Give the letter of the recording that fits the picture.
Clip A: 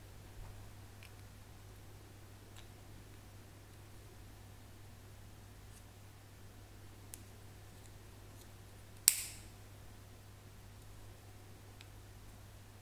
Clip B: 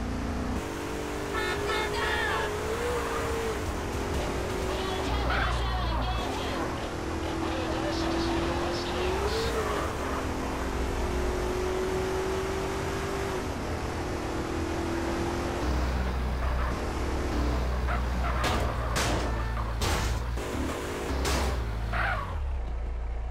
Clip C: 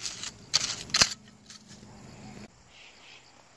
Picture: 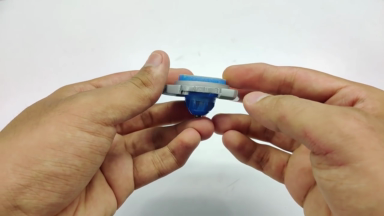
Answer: A